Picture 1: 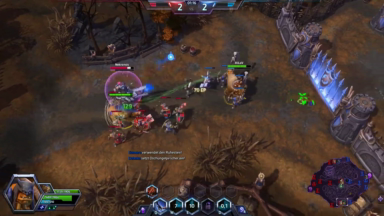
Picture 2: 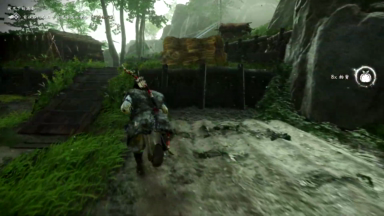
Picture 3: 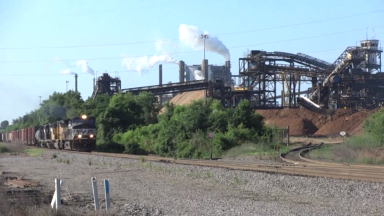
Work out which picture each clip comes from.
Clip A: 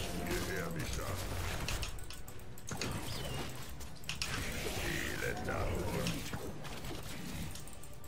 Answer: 1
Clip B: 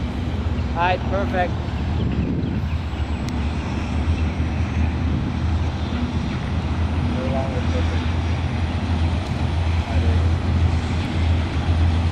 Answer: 3